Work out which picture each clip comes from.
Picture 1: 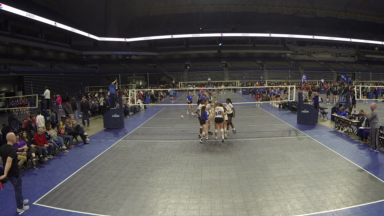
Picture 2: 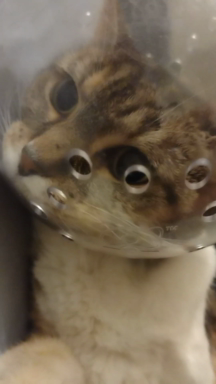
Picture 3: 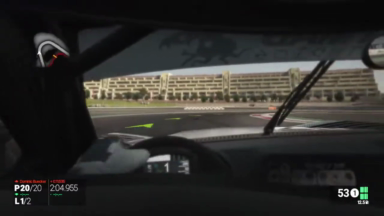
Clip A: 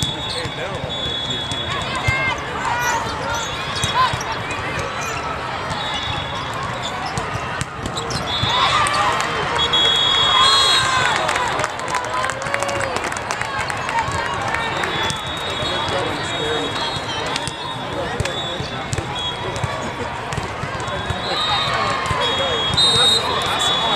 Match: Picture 1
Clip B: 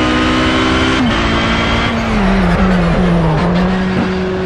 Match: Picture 3